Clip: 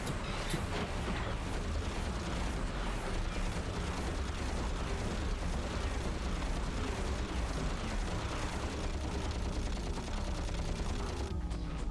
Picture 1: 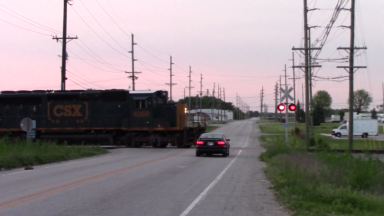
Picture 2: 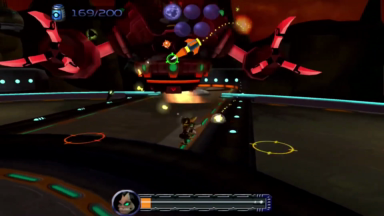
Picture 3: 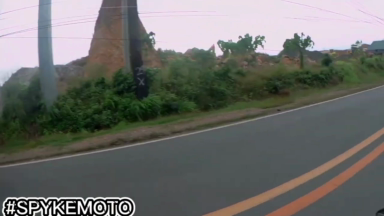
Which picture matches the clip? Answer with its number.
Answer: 2